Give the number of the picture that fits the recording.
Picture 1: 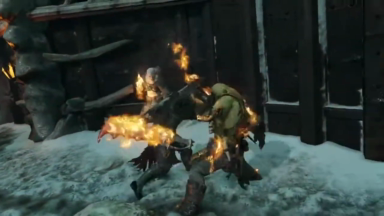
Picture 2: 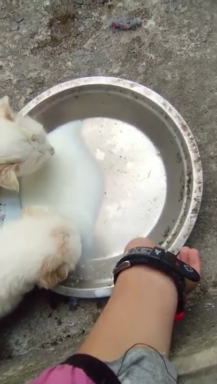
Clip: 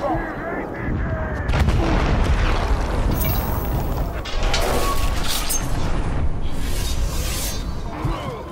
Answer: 1